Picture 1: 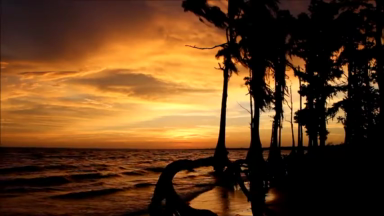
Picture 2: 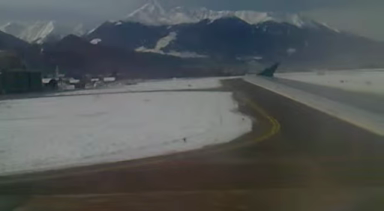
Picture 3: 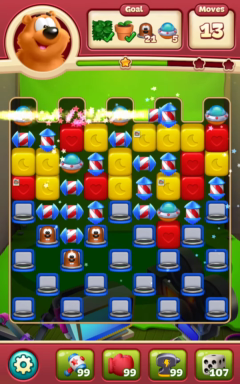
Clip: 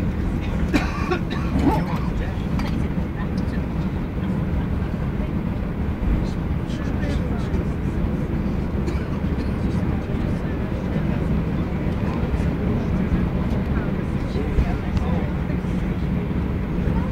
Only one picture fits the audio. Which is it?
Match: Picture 2